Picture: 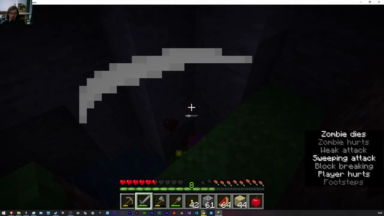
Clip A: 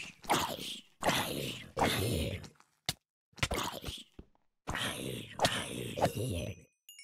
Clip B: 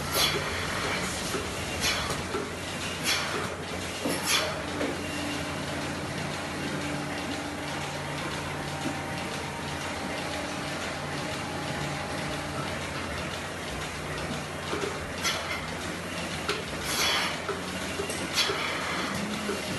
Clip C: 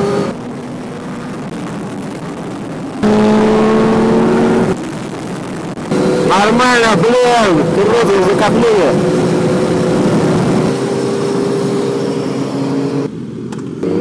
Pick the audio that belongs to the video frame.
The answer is A